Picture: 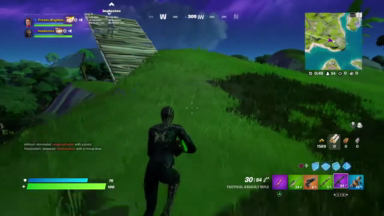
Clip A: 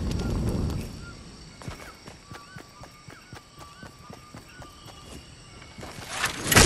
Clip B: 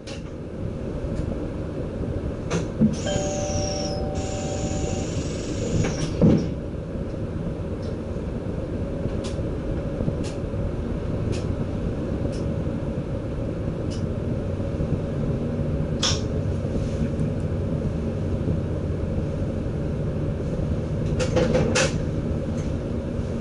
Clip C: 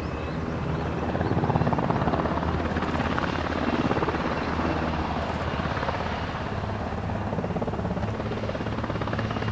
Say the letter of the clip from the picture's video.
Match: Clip A